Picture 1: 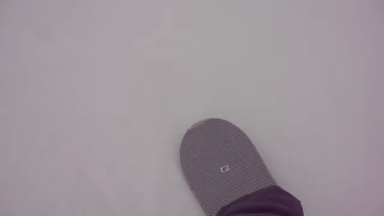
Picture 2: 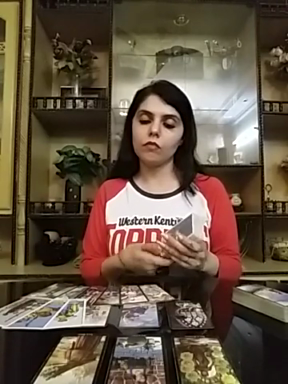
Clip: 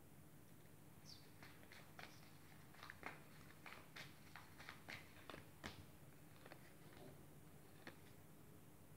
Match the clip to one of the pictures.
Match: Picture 2